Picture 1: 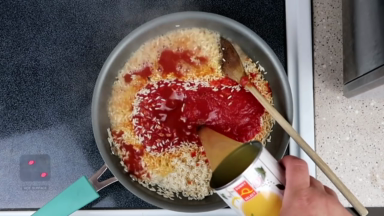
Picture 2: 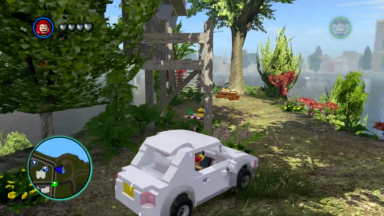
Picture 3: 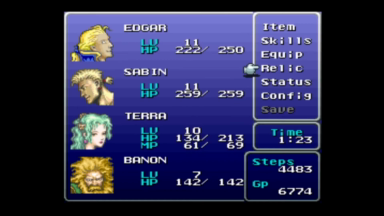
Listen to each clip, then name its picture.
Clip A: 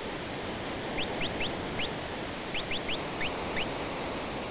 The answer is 3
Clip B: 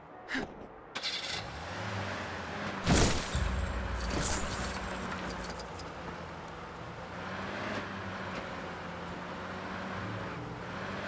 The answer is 2